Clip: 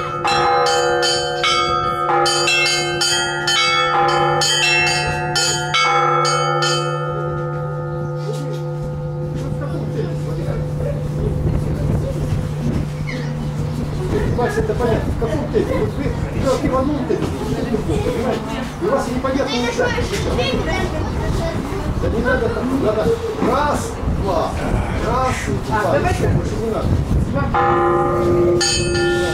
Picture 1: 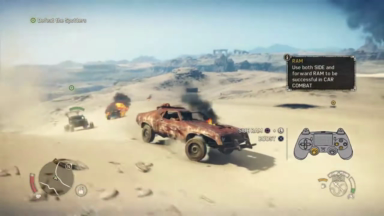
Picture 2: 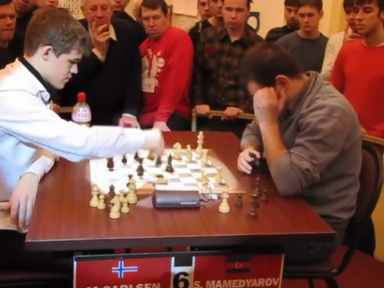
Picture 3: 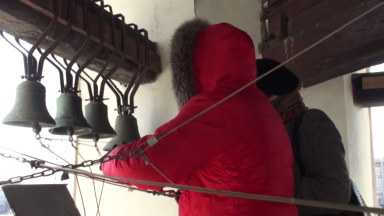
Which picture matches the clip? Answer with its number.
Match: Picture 3